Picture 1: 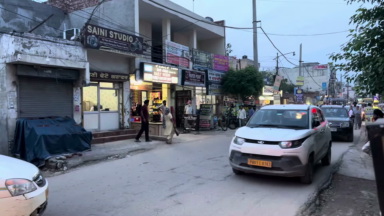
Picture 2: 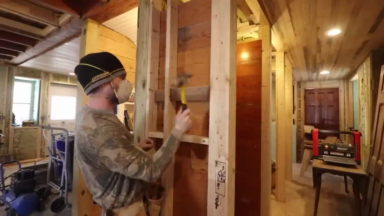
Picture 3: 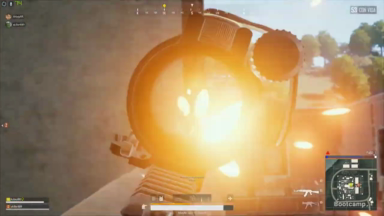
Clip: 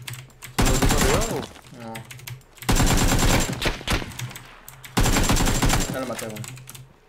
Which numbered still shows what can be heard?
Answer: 3